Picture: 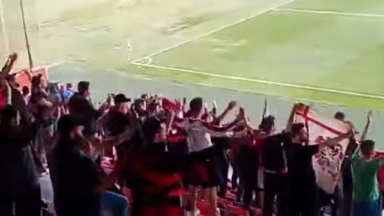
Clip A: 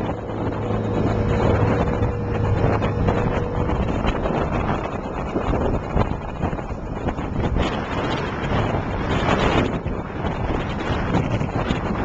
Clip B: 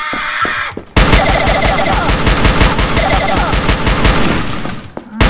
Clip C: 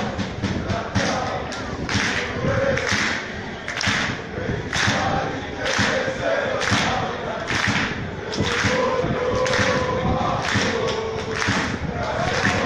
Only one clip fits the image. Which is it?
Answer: C